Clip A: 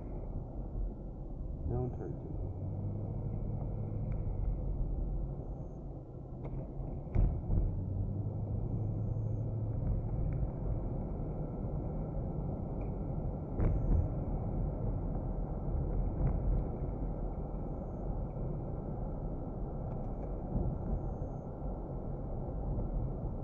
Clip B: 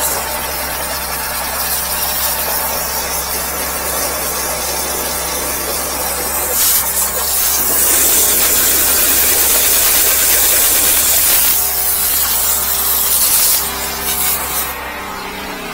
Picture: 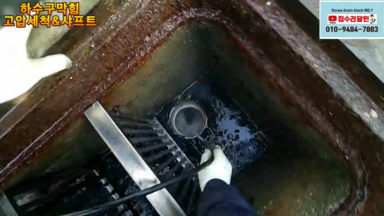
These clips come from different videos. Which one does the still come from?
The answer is B